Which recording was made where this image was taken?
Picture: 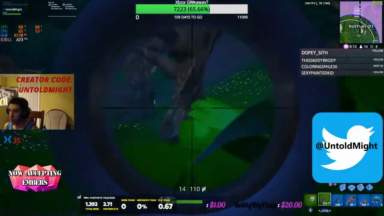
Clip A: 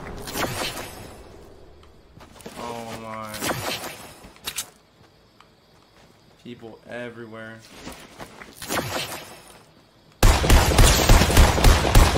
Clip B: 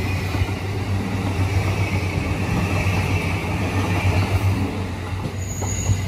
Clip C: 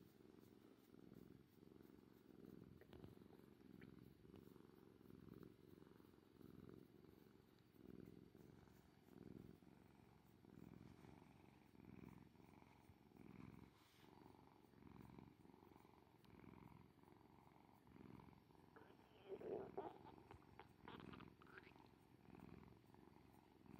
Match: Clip A